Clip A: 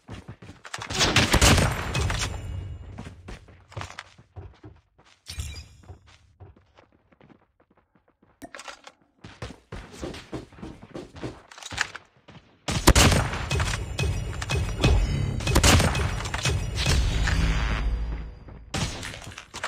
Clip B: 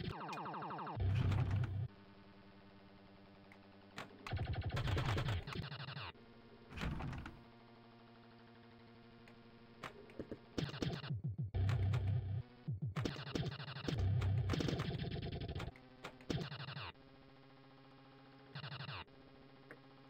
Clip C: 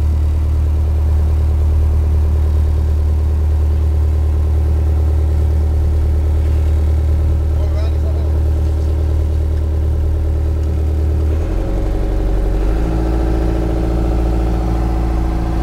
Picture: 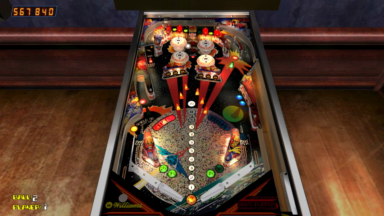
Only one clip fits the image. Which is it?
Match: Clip B